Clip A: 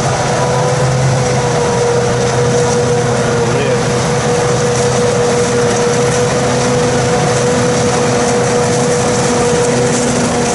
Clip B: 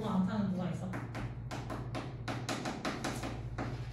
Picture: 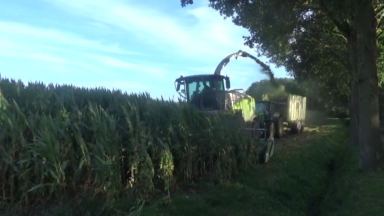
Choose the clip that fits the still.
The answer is A